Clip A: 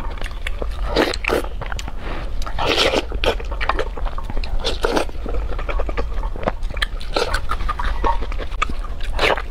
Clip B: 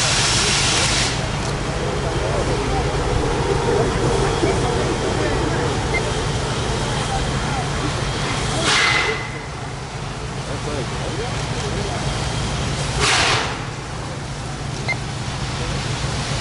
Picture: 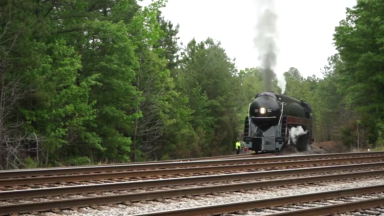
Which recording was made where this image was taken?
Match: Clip B